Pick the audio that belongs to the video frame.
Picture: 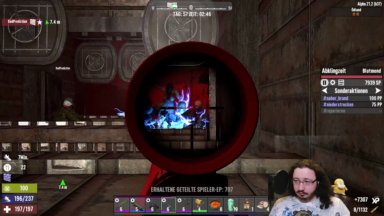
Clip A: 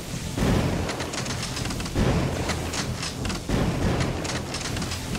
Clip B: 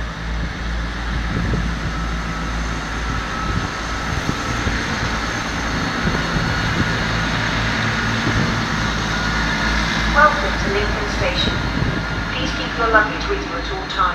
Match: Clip A